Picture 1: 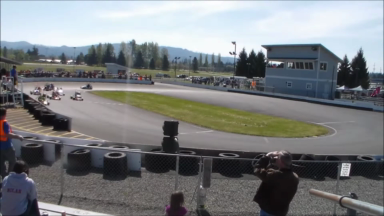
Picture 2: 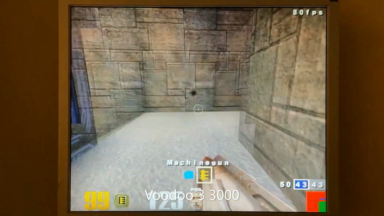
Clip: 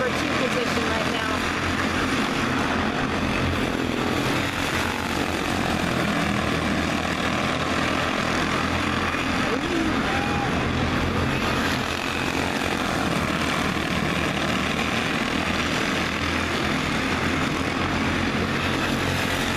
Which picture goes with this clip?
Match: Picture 1